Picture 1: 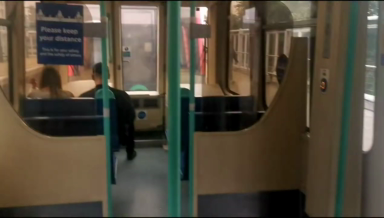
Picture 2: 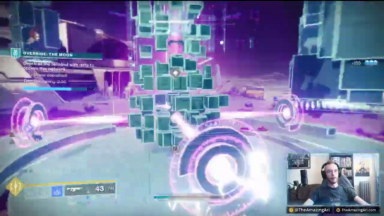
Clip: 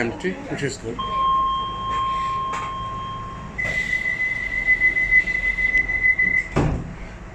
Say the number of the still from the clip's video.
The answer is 1